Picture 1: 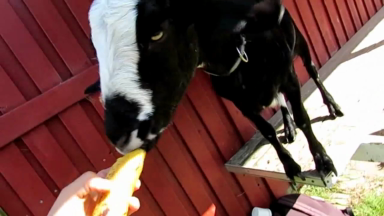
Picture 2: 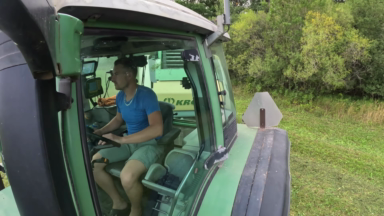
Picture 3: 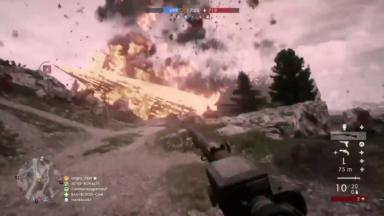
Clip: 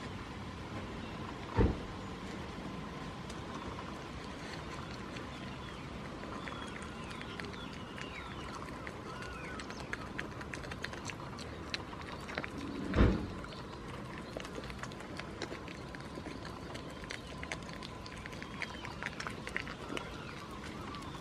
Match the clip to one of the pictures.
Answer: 1